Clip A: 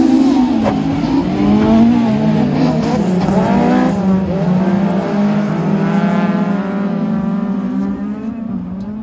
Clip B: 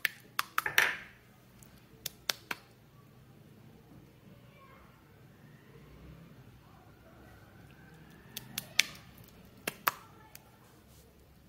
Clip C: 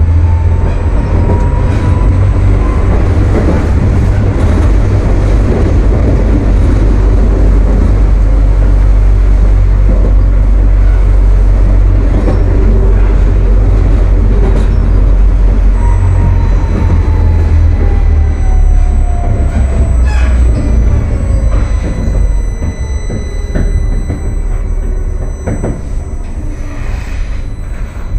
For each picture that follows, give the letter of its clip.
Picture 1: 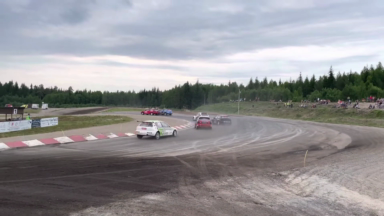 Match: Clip A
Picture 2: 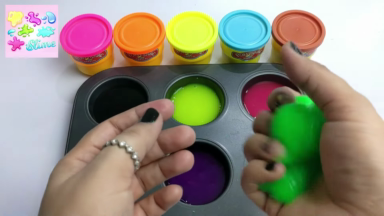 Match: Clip B